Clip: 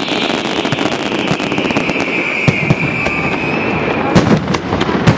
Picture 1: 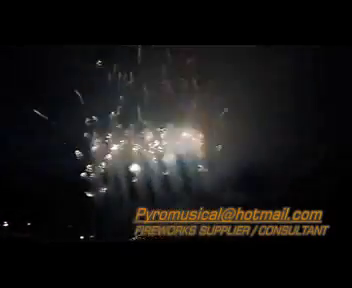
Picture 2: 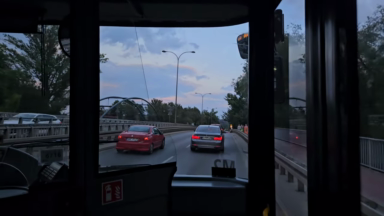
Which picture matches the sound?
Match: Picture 1